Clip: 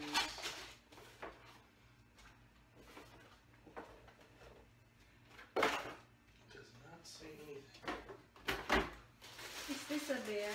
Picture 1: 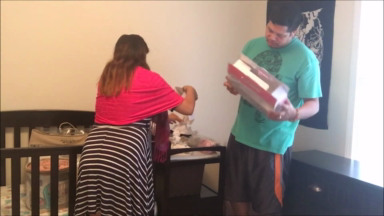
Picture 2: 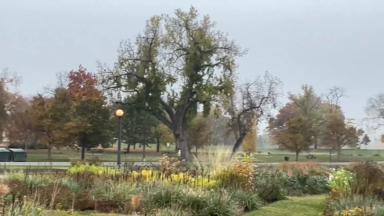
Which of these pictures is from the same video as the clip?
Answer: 1